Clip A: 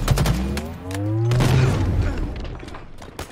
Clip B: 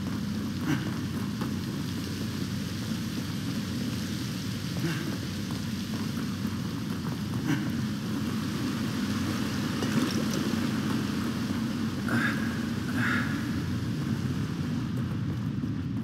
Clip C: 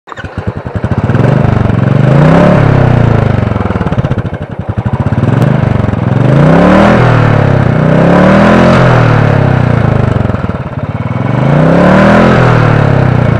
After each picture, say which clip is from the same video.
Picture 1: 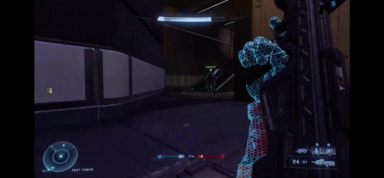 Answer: A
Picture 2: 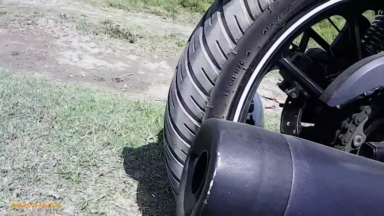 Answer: C